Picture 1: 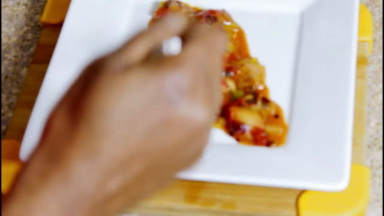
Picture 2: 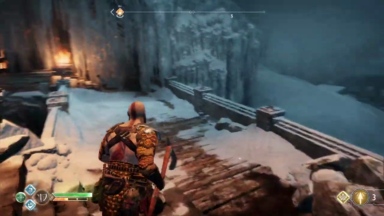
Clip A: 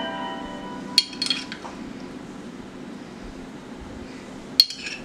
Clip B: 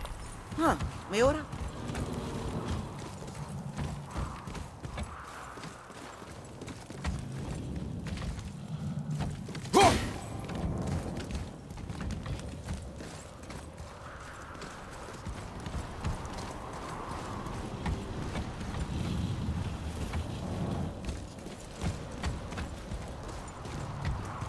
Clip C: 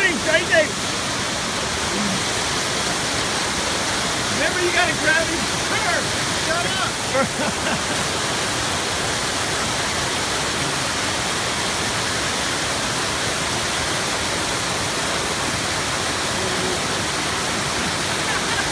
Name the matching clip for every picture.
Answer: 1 A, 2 B